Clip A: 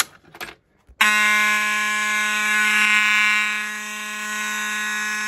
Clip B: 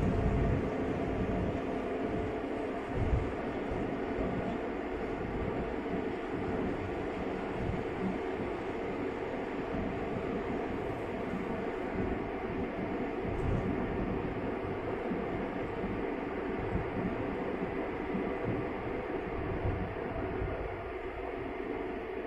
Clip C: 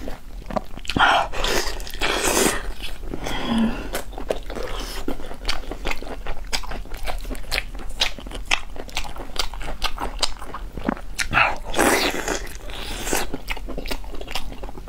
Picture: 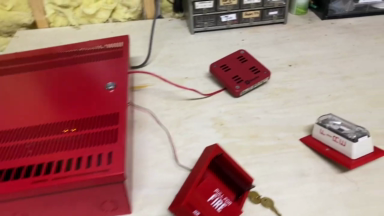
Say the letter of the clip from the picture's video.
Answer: A